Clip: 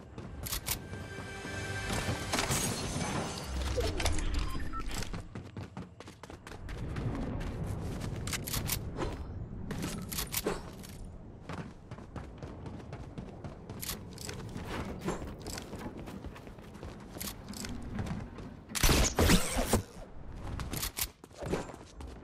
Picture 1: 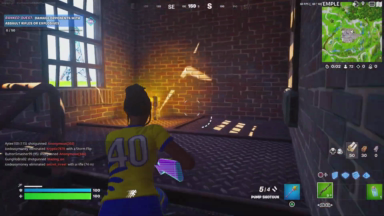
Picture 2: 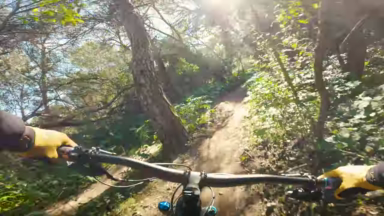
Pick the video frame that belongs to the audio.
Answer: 1